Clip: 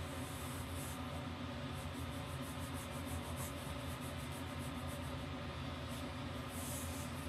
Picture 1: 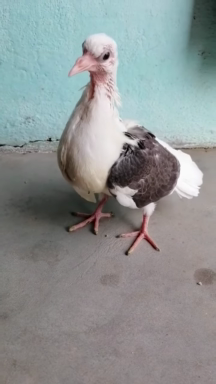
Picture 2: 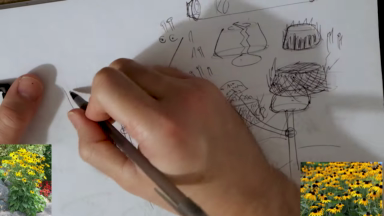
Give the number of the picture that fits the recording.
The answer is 2